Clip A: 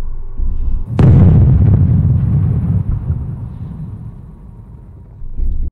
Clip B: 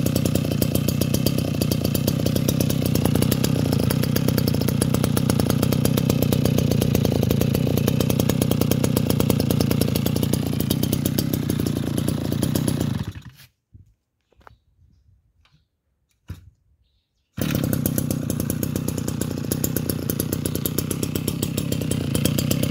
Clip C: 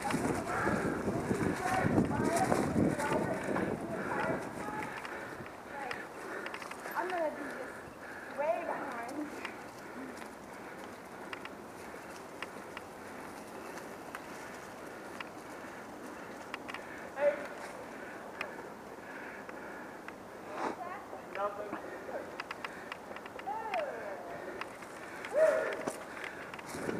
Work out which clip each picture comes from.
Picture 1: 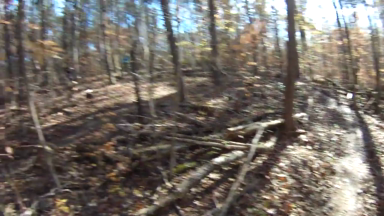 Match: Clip C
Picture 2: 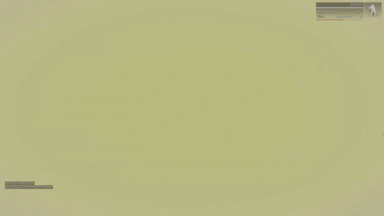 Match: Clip A